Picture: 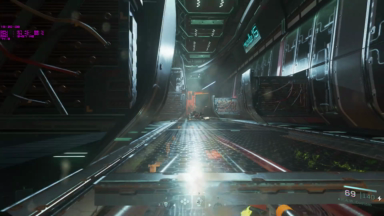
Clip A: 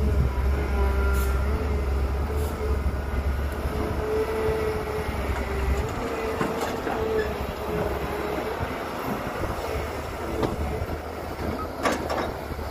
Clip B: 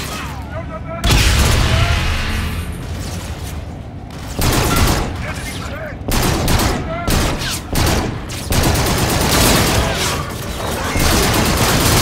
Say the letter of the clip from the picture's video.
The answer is B